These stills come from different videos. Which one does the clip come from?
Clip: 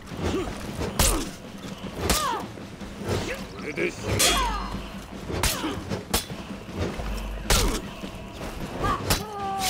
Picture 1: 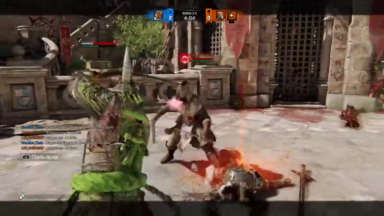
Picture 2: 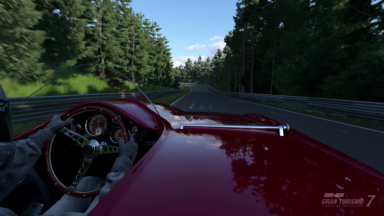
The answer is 1